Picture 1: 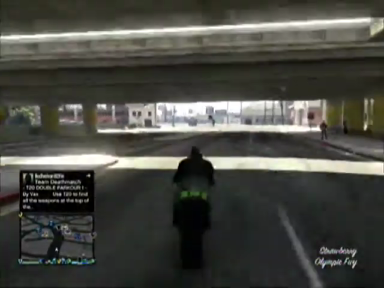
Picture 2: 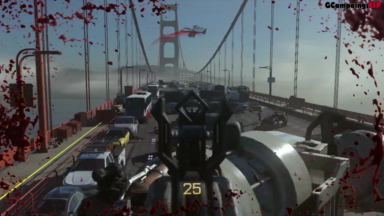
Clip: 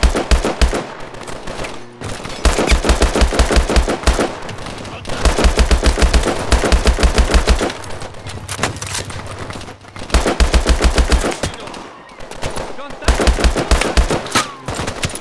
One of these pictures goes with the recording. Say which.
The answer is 2